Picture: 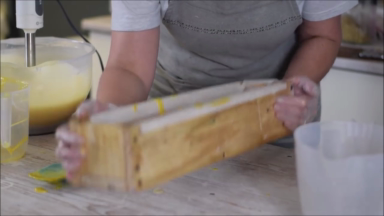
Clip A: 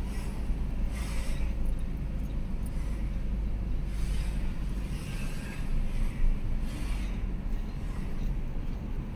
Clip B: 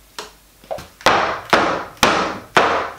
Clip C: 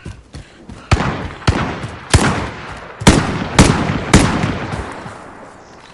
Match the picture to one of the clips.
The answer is B